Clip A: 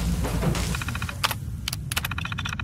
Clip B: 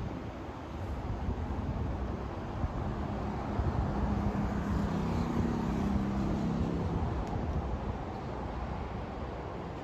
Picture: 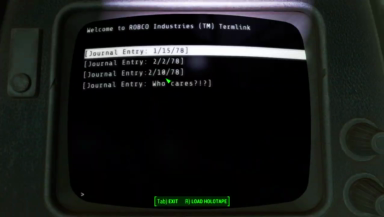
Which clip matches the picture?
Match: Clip A